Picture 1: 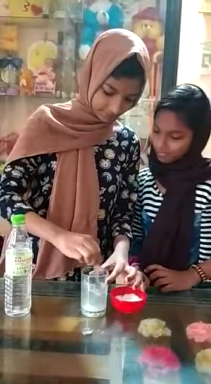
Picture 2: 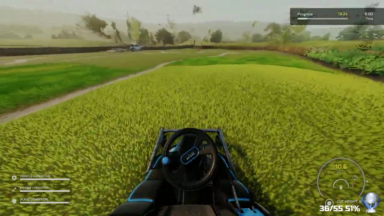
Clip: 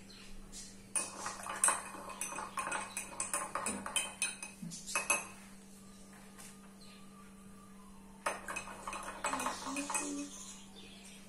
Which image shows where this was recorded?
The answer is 1